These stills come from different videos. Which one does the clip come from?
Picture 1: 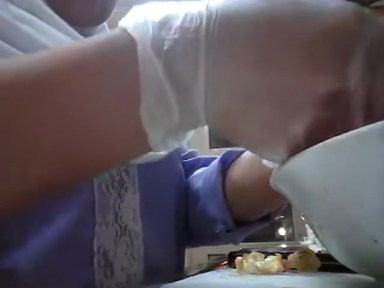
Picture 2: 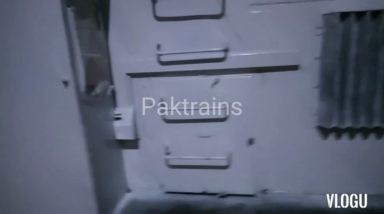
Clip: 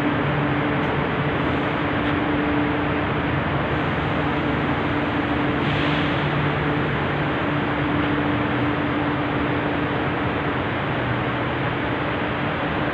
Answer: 2